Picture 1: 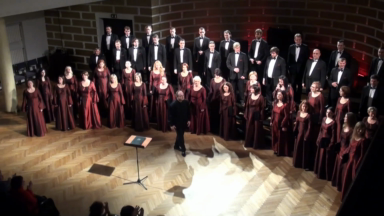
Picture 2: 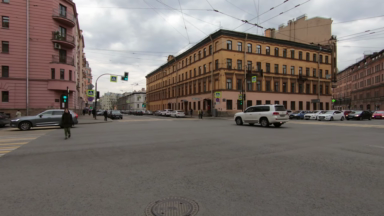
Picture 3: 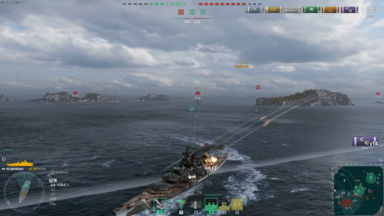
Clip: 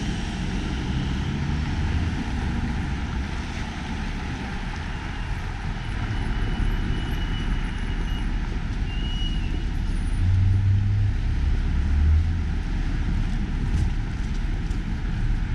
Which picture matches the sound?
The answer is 2